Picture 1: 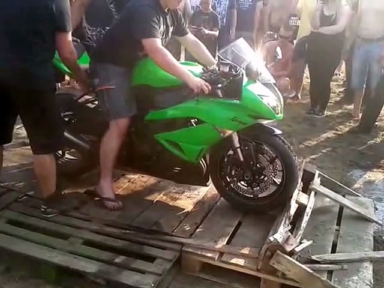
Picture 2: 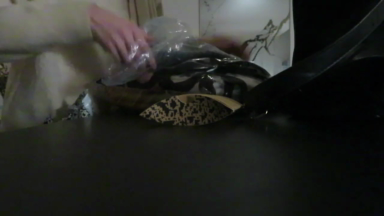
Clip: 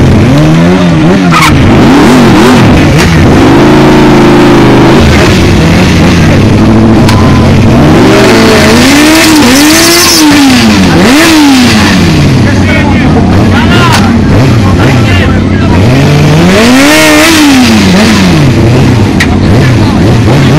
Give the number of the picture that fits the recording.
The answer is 1